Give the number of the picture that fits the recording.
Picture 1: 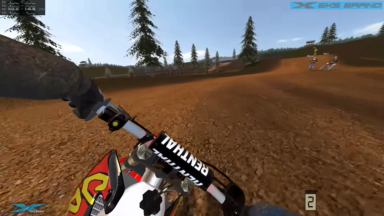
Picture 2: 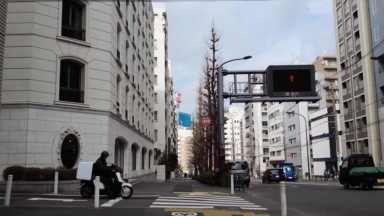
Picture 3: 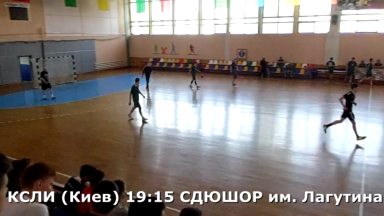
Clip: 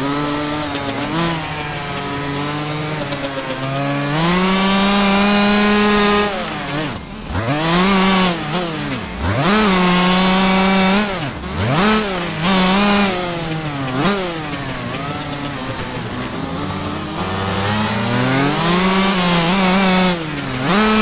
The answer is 1